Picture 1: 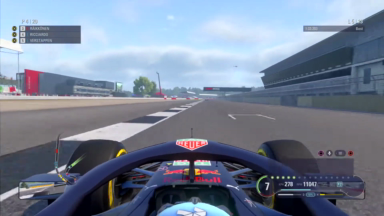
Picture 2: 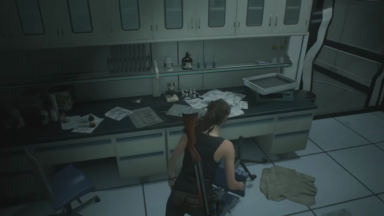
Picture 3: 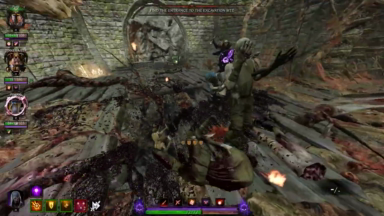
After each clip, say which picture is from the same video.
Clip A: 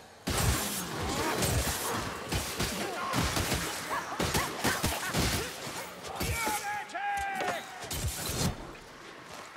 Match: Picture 3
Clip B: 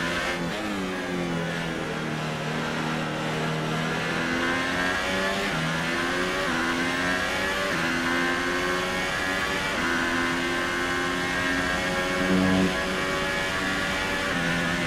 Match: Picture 1